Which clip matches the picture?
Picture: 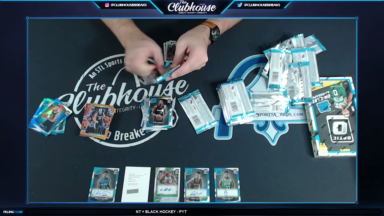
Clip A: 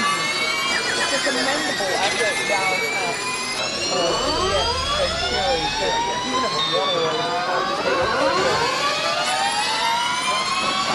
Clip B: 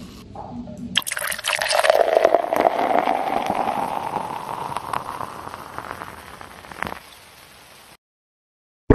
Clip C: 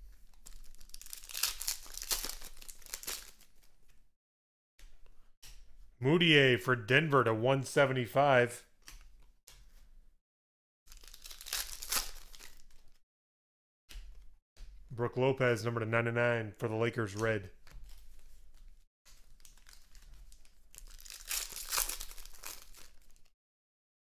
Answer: C